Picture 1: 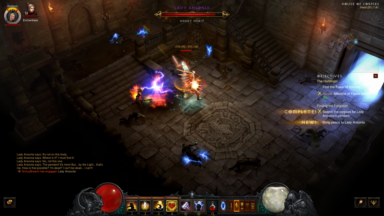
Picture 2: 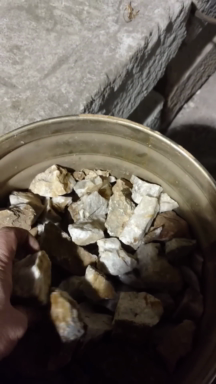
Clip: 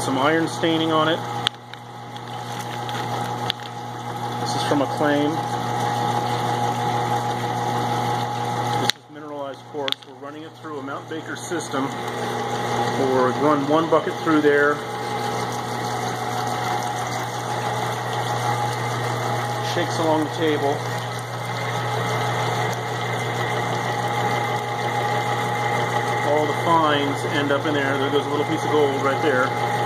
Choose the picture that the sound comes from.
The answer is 2